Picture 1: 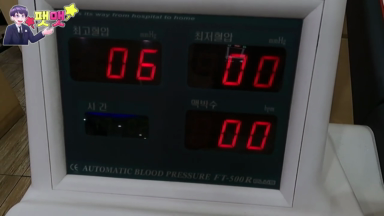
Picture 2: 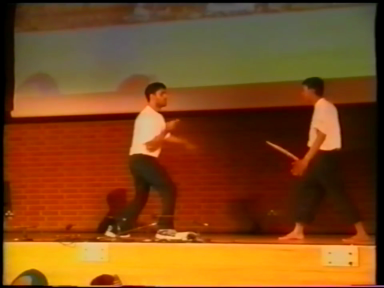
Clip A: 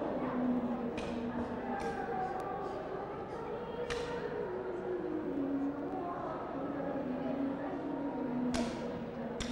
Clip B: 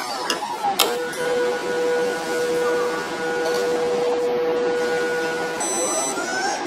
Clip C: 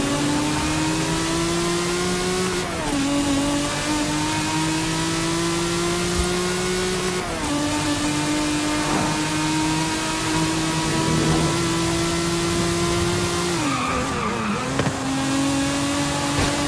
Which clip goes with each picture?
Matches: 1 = B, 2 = A